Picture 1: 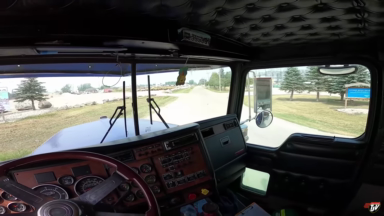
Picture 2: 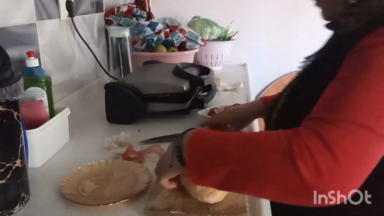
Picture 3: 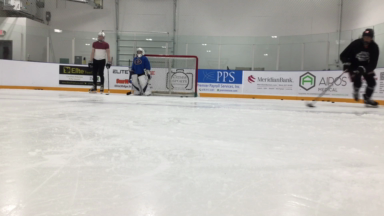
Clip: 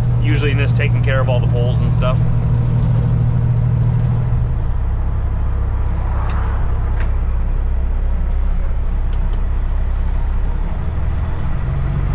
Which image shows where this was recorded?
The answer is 1